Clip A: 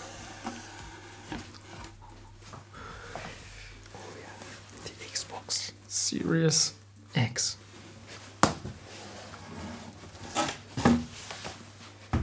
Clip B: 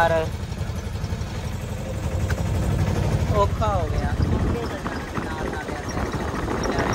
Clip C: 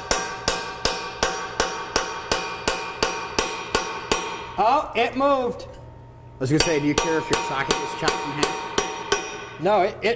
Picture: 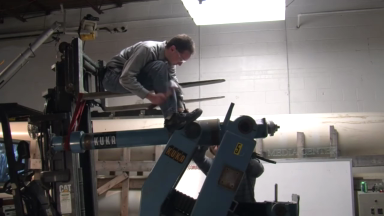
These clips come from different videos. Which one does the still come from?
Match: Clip C